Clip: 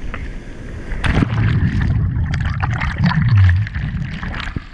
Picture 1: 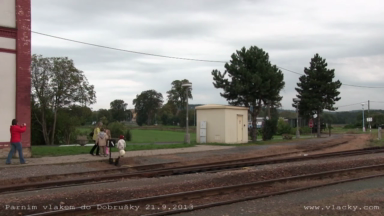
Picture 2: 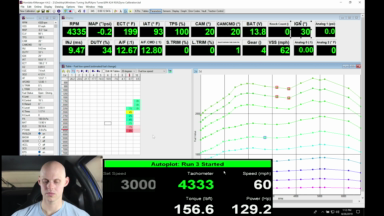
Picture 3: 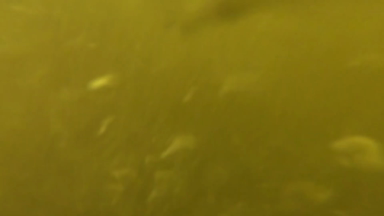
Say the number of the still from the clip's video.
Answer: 3